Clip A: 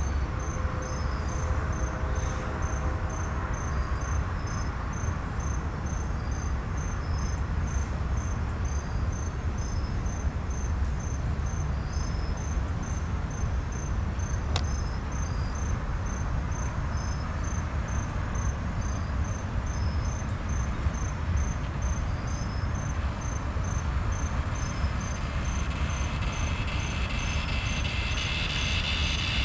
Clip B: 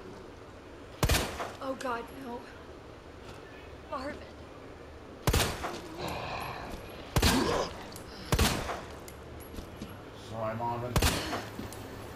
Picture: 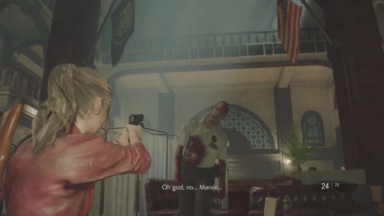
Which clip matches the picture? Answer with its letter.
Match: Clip B